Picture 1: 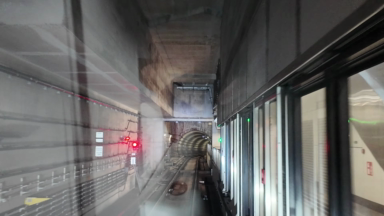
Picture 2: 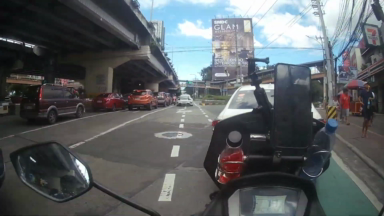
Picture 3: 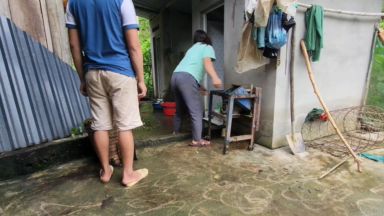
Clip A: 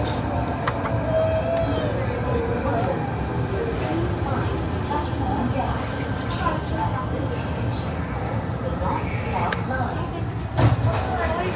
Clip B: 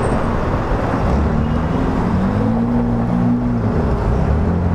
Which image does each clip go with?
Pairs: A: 1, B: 2